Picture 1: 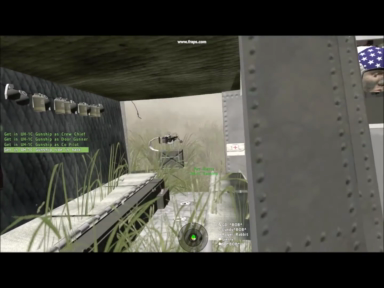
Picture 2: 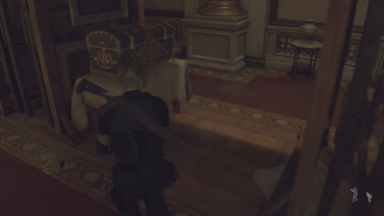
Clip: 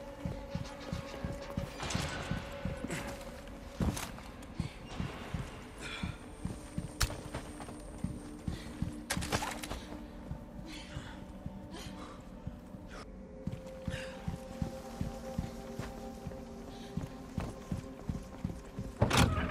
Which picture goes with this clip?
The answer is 2